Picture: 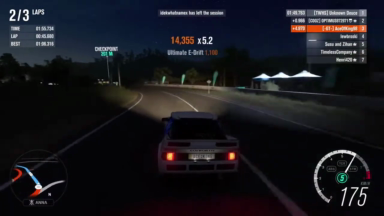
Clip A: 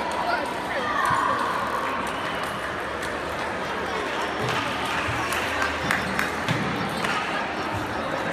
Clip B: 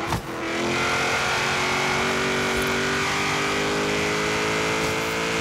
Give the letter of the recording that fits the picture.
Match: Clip B